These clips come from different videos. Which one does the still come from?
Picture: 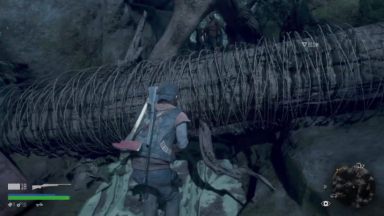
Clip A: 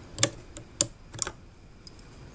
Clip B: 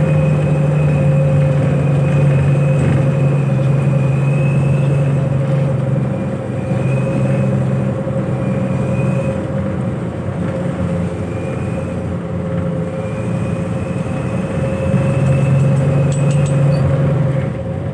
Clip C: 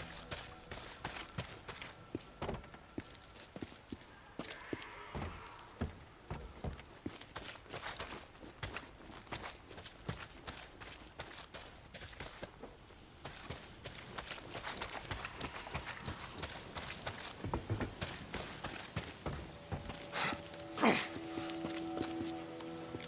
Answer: C